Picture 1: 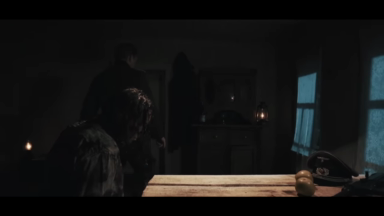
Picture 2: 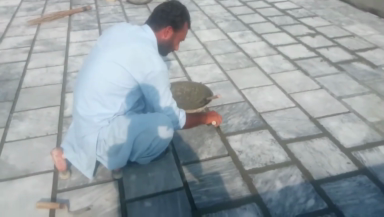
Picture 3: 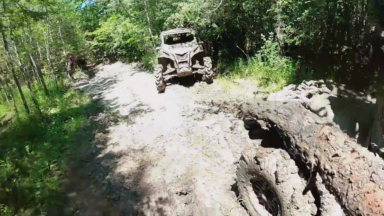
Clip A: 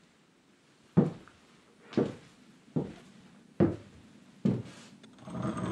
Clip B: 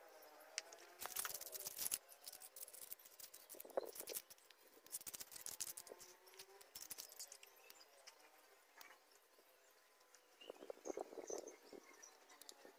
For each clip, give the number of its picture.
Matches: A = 1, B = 2